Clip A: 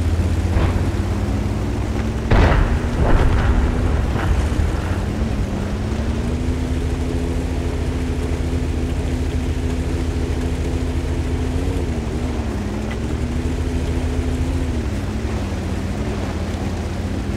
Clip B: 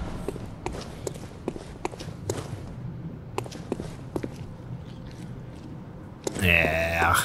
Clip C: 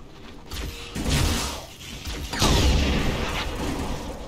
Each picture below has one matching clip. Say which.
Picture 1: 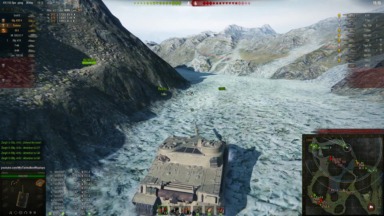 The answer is A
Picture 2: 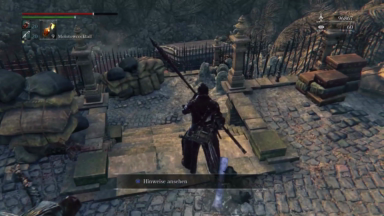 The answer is B